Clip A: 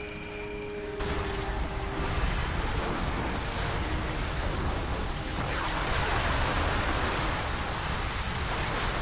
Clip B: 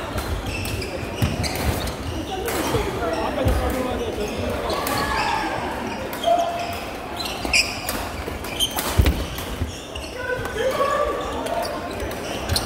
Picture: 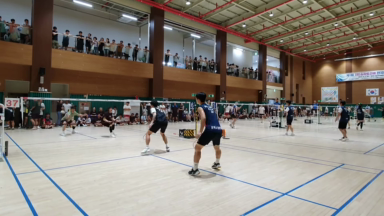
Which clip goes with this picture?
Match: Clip B